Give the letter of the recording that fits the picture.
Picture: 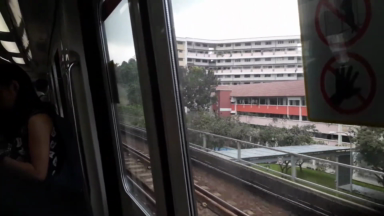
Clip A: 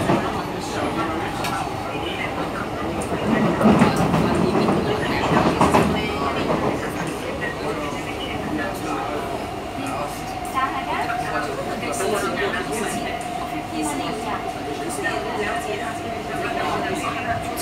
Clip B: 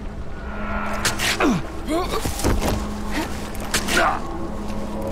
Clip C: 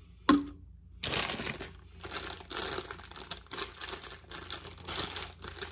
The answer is A